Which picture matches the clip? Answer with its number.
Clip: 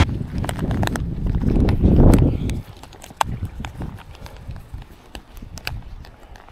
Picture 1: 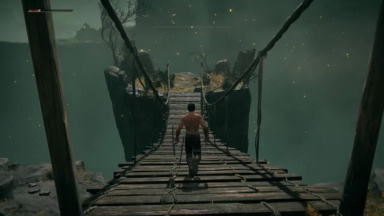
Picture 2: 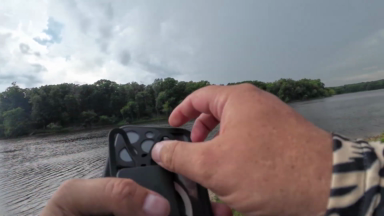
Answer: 2